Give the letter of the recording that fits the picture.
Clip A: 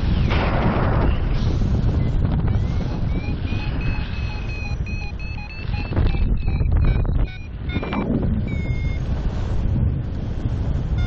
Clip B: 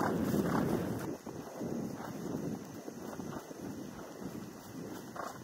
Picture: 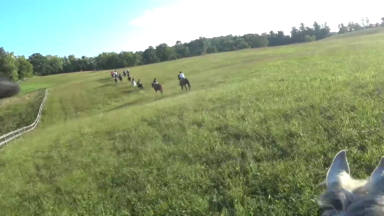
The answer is B